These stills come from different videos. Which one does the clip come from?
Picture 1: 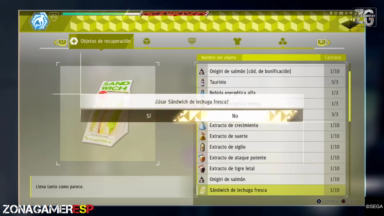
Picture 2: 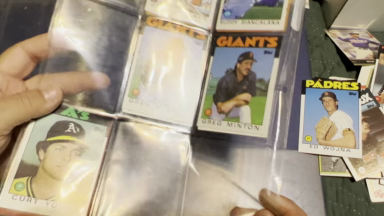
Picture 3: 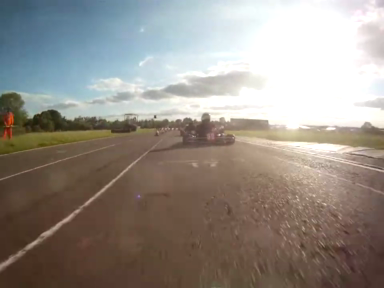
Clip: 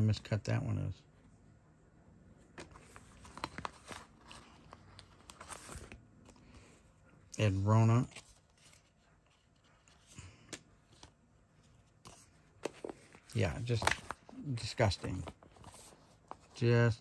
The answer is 2